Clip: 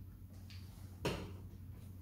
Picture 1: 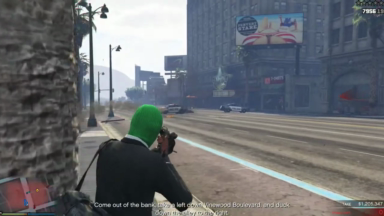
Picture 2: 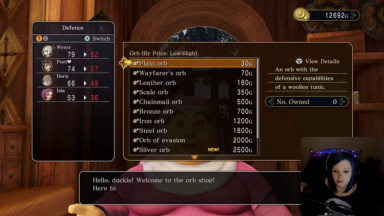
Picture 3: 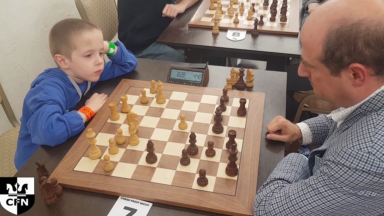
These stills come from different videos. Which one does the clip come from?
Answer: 3